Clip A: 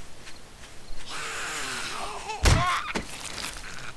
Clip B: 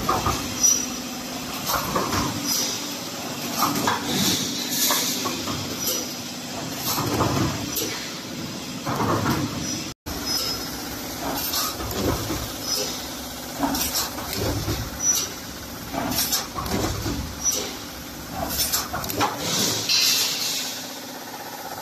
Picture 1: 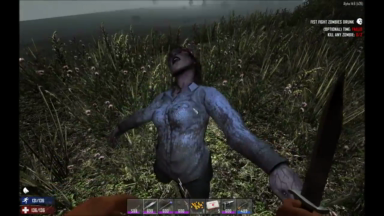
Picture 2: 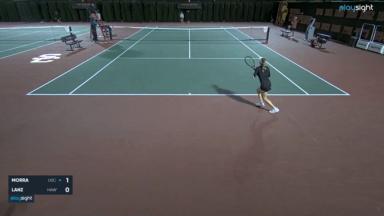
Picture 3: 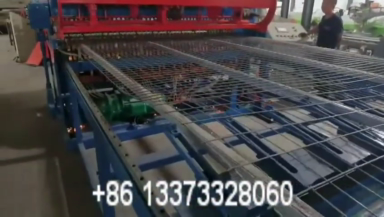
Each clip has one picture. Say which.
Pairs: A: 1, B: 3